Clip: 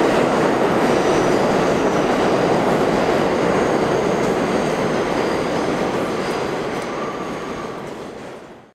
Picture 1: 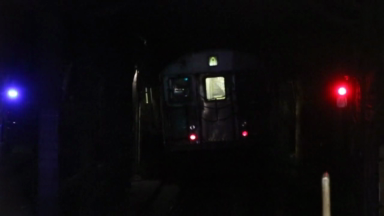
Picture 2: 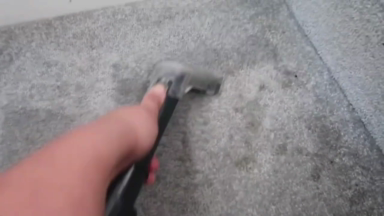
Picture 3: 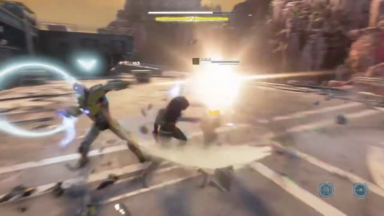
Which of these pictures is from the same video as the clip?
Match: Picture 1